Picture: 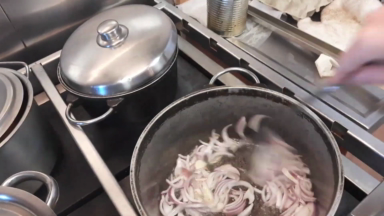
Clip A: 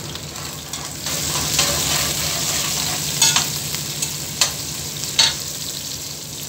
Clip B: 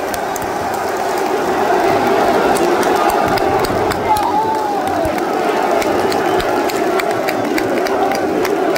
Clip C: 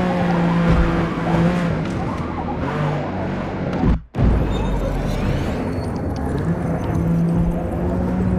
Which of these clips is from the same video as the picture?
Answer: A